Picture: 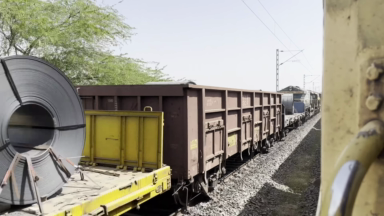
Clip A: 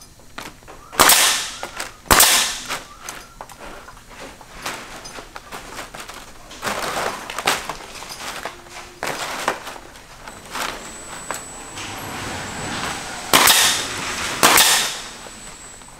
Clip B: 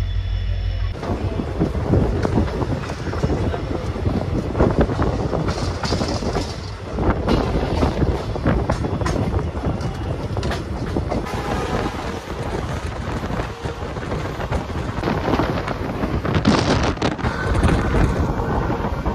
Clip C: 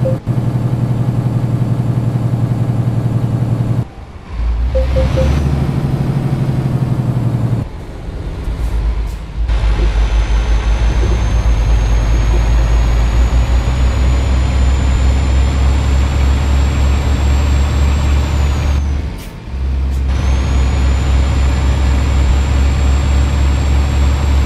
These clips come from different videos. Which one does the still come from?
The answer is B